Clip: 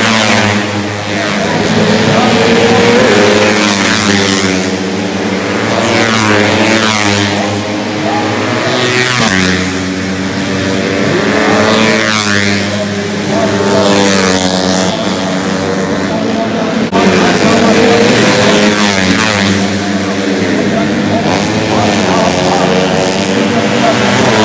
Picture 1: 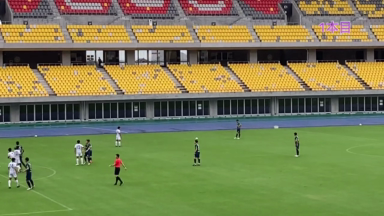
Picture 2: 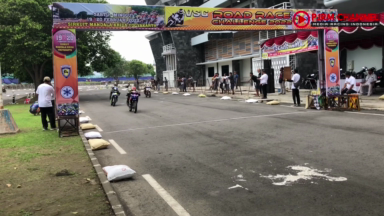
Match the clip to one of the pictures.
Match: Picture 2